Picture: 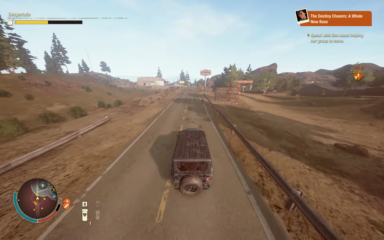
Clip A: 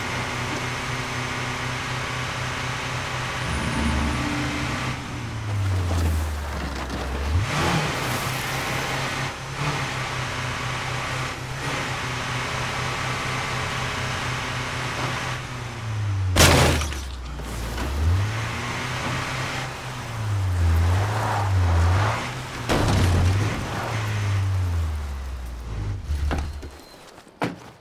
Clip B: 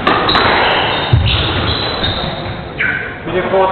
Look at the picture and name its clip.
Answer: A